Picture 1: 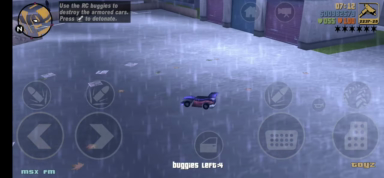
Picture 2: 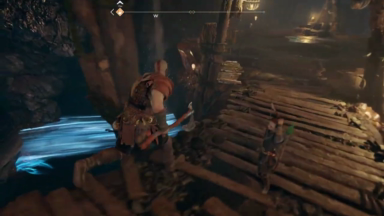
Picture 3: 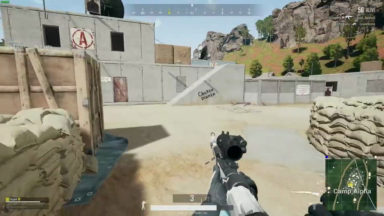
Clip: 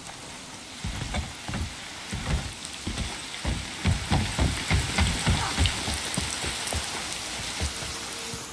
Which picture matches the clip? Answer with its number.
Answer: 2